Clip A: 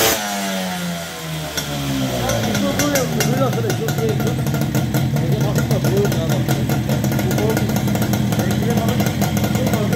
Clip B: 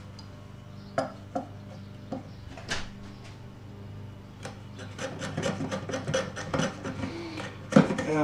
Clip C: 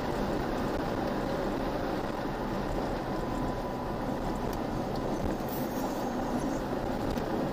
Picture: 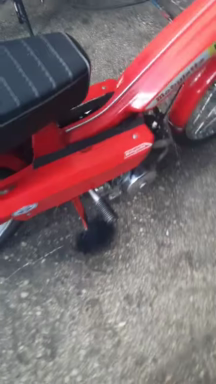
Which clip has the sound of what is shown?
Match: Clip A